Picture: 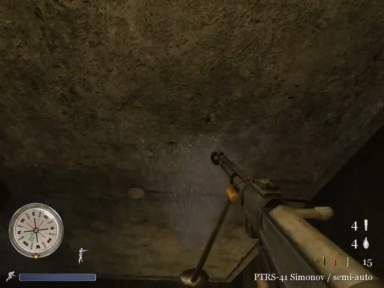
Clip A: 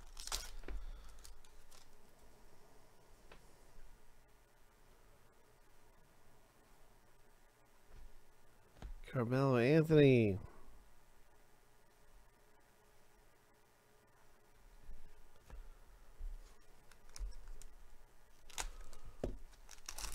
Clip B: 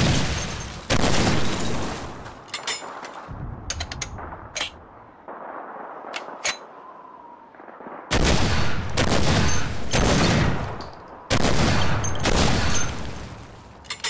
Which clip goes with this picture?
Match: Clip B